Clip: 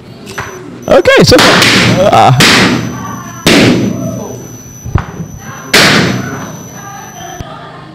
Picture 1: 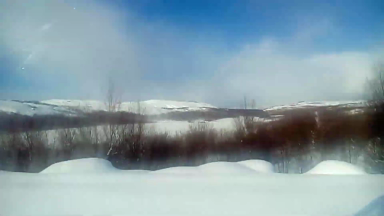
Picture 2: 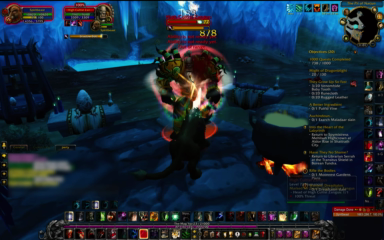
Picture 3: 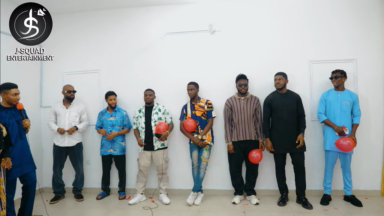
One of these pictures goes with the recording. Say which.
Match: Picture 3